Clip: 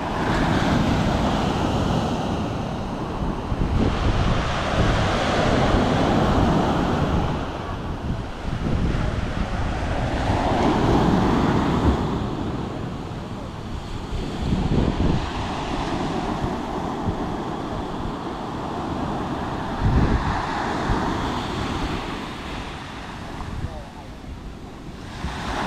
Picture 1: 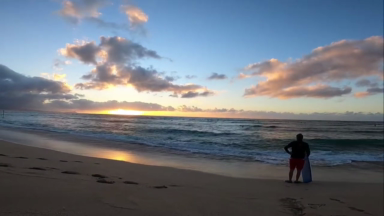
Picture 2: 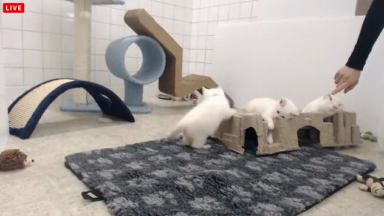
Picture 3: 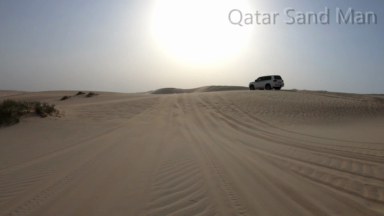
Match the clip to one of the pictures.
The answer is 1